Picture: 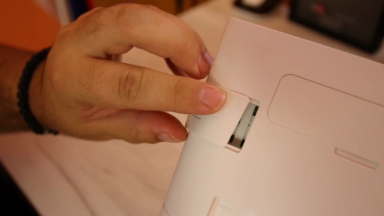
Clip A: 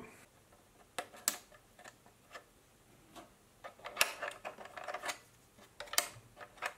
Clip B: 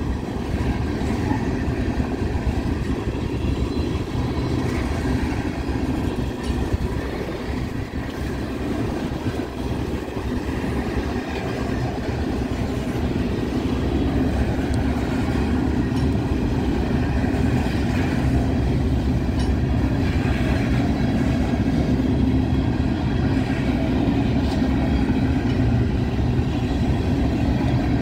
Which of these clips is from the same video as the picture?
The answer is A